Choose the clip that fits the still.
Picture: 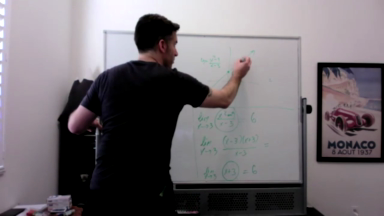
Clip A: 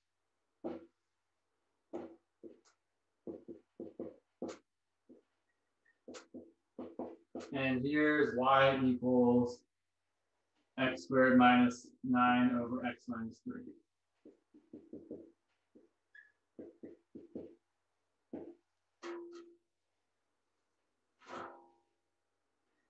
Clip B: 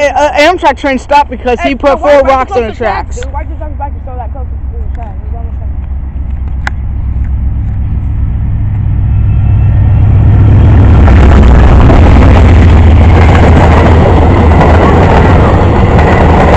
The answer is A